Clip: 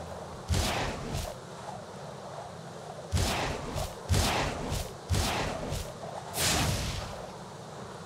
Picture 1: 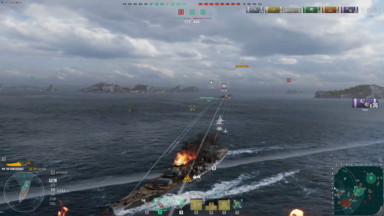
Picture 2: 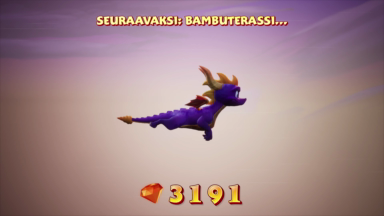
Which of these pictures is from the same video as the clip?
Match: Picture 2